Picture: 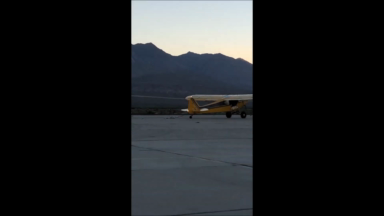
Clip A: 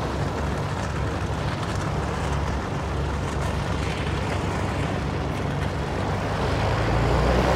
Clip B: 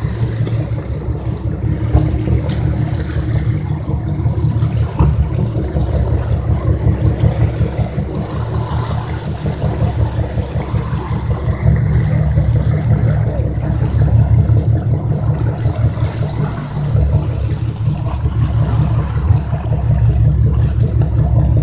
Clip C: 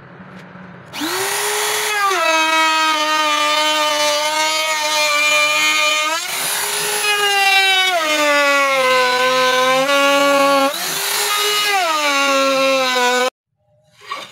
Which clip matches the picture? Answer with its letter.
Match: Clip A